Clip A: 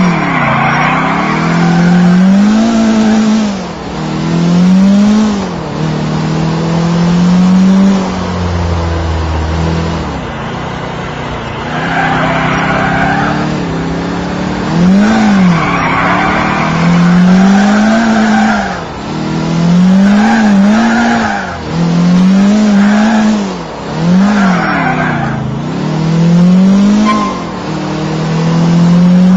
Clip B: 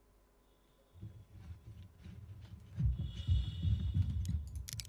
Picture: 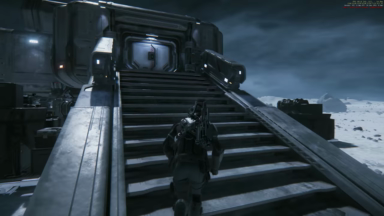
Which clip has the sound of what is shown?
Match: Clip B